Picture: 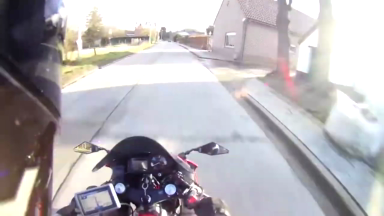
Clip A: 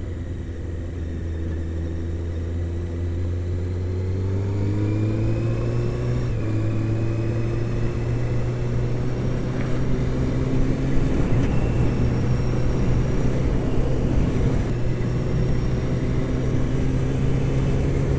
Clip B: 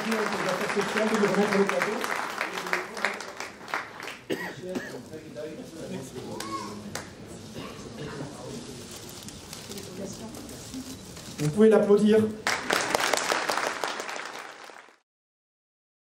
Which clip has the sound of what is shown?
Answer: A